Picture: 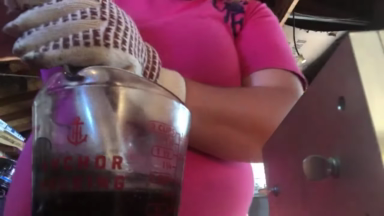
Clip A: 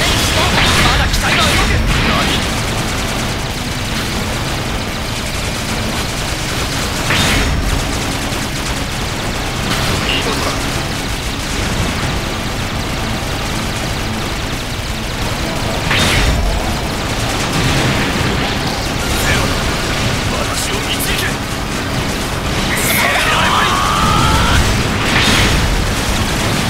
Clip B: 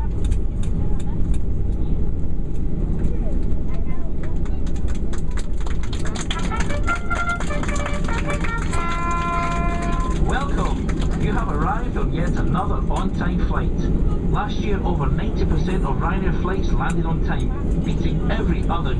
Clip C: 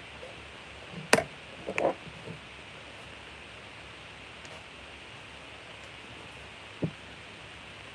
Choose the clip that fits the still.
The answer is C